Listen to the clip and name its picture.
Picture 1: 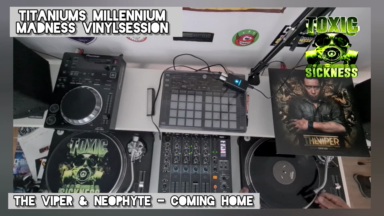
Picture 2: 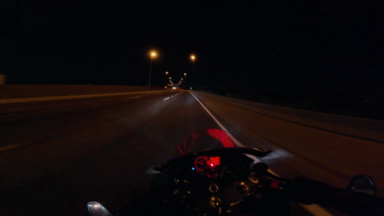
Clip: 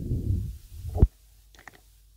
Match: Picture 1